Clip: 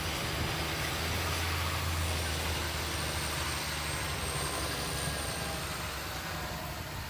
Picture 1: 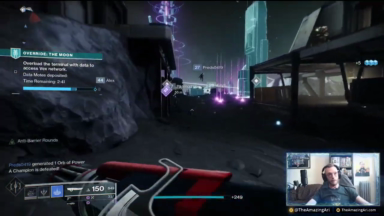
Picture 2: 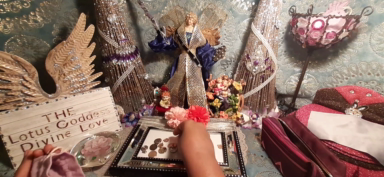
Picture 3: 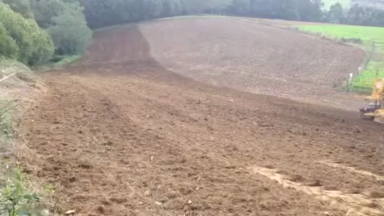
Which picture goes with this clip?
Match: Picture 3